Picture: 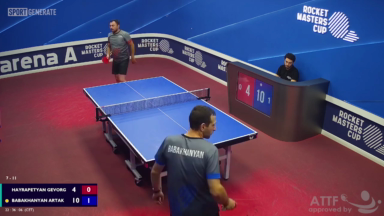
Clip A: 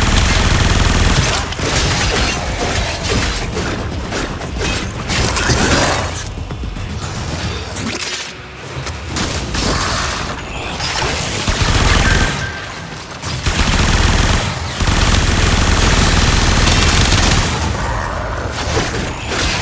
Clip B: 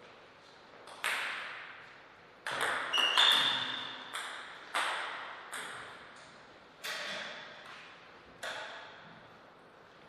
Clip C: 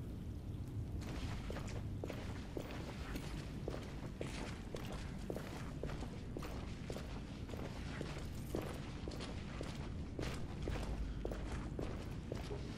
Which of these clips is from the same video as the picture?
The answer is B